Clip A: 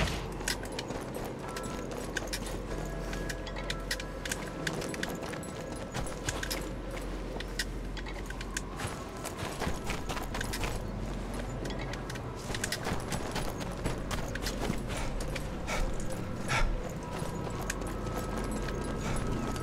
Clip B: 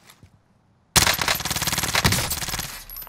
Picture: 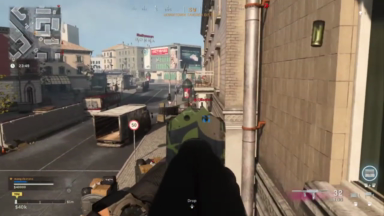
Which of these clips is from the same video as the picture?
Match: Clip B